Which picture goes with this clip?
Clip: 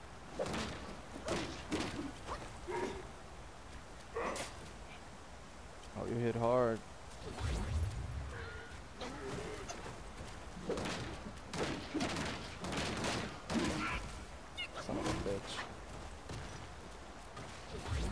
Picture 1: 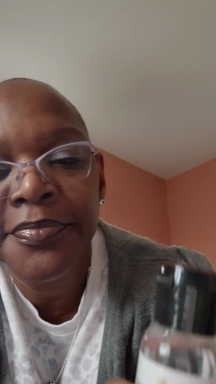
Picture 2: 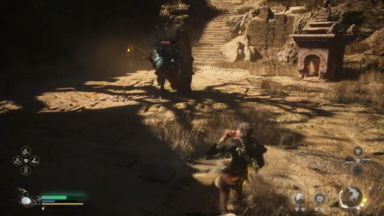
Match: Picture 2